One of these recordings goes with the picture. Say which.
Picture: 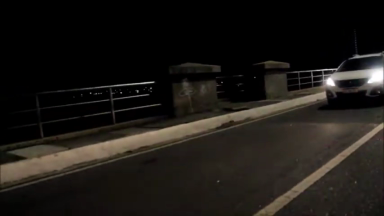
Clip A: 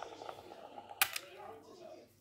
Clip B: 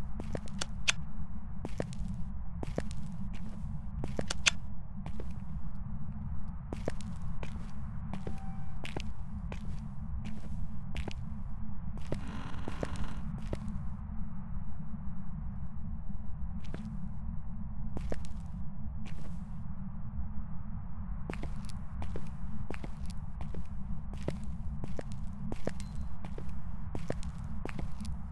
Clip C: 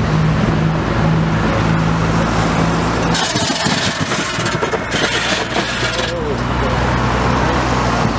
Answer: C